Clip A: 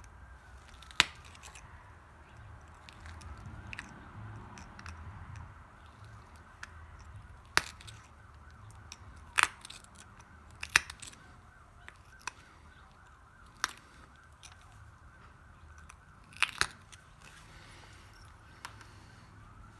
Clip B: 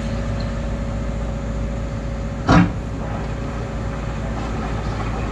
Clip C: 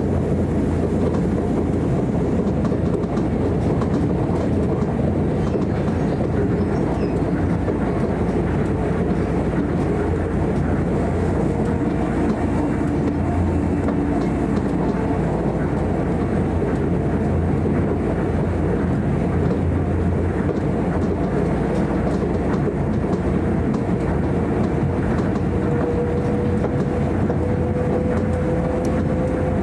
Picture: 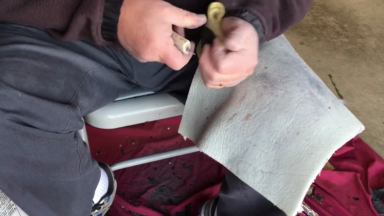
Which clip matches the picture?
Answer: A